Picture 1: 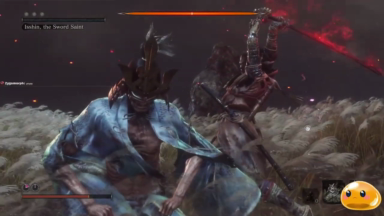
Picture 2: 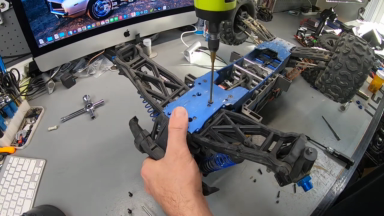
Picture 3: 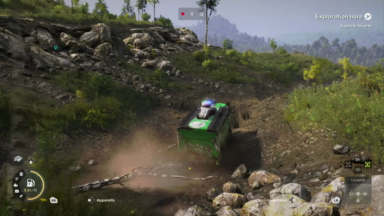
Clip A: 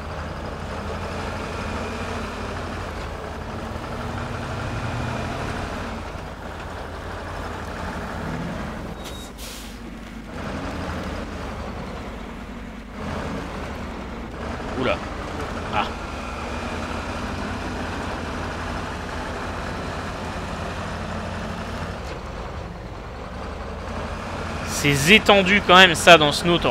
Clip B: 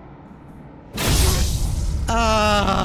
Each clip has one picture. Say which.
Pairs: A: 3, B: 1